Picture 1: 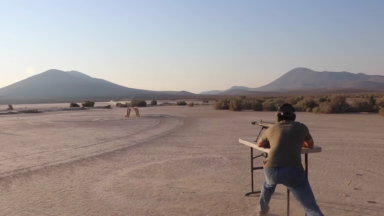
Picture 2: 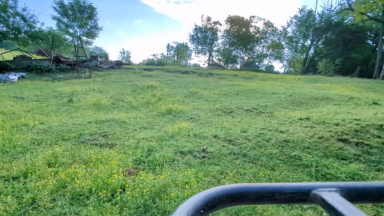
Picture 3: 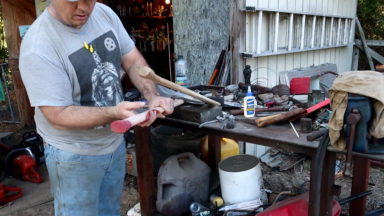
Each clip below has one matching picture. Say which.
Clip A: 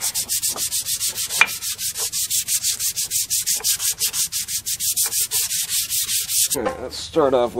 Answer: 3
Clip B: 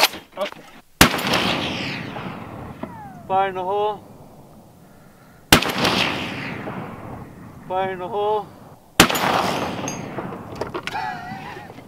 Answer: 1